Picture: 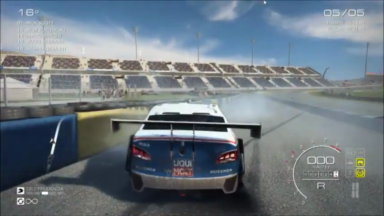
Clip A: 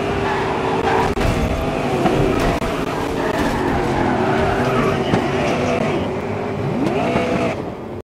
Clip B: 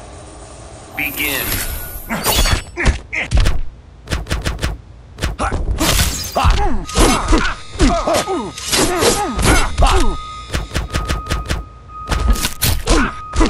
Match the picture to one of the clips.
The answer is A